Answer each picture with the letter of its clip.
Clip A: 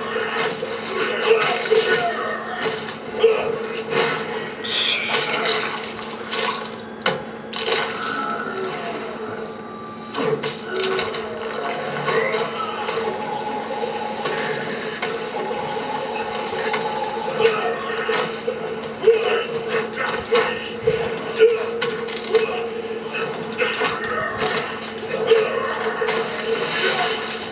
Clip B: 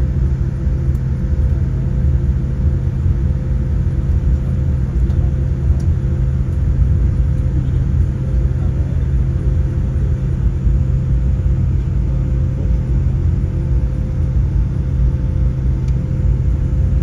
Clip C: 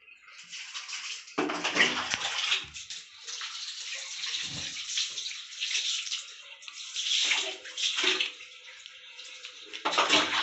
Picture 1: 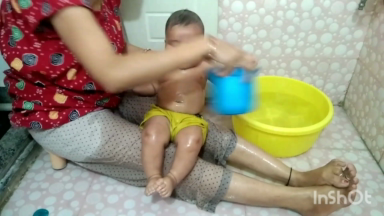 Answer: C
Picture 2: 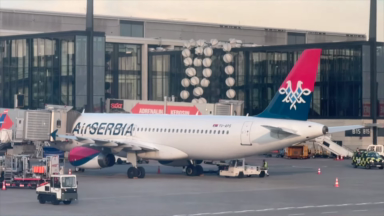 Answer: B